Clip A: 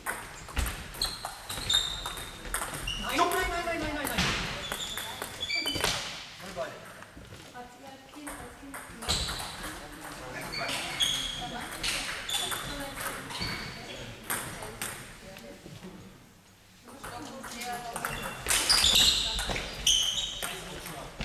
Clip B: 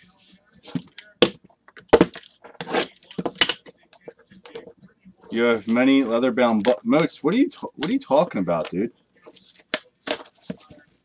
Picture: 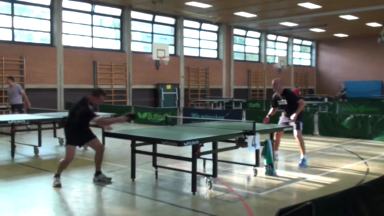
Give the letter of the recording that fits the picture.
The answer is A